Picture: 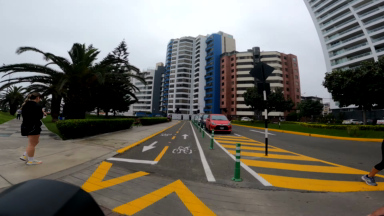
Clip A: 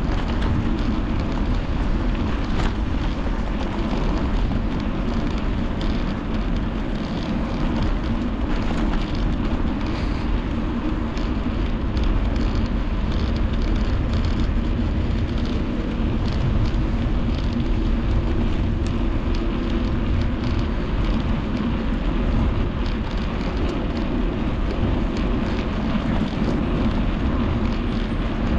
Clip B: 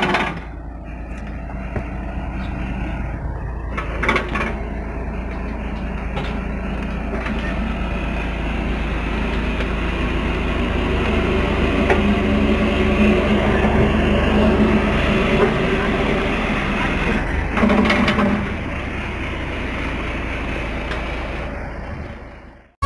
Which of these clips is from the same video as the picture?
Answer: A